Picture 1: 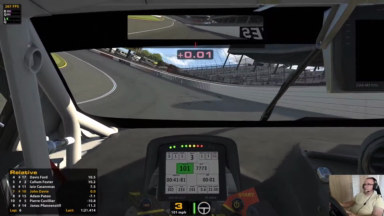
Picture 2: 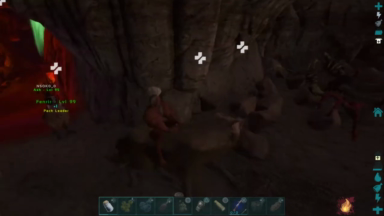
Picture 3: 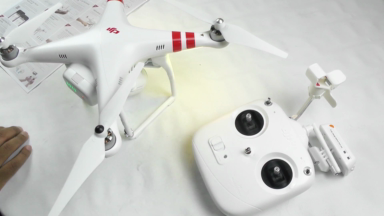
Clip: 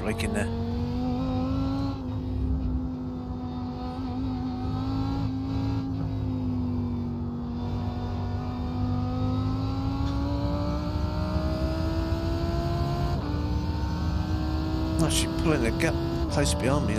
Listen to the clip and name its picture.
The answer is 1